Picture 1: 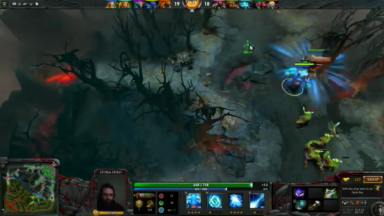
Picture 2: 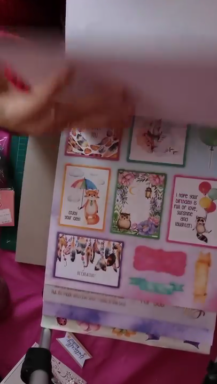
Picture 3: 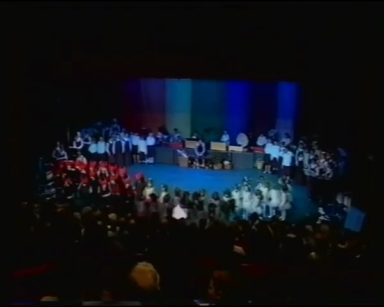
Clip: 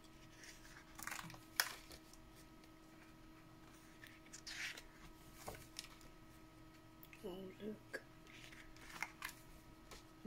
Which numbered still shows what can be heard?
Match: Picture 2